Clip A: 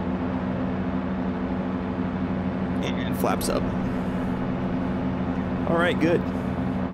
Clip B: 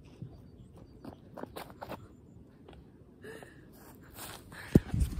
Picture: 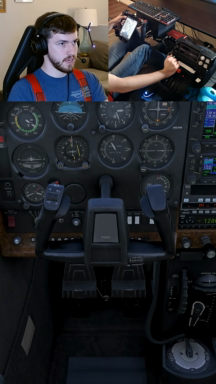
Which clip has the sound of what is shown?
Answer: A